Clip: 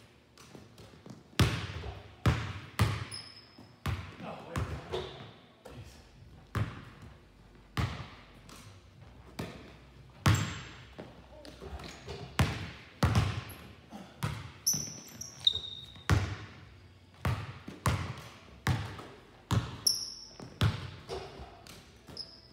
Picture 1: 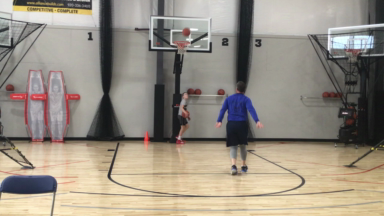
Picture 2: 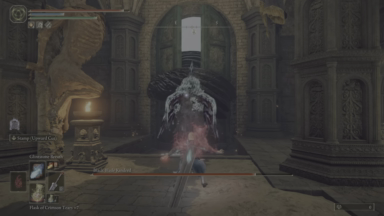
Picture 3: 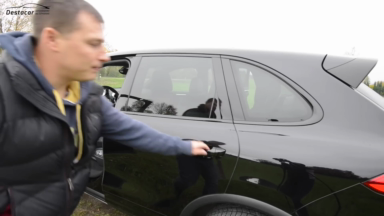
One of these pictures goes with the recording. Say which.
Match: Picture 1